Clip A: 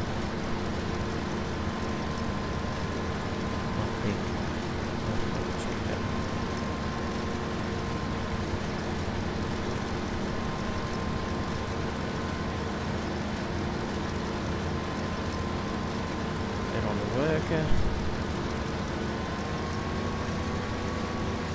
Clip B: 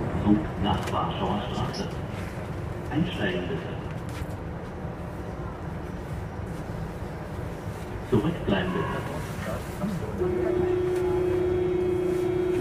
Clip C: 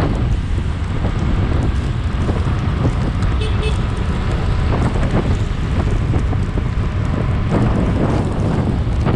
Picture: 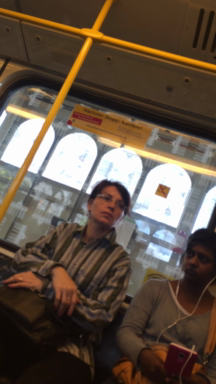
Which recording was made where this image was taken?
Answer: B